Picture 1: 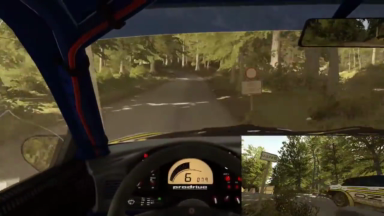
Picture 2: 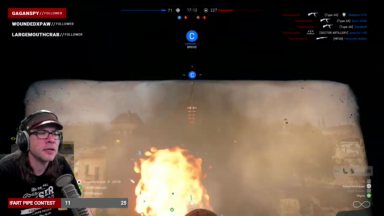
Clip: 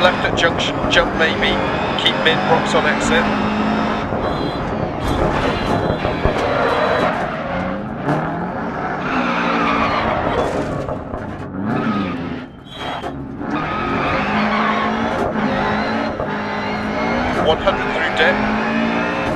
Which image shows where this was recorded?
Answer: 1